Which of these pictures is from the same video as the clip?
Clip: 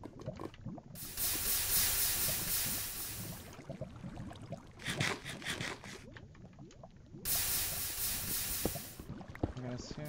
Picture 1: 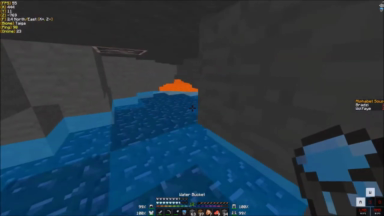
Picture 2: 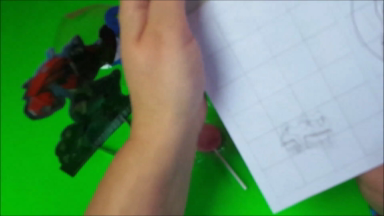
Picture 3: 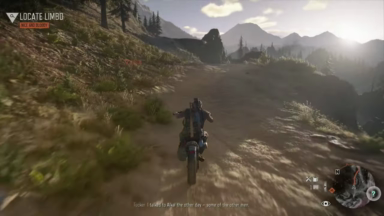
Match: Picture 1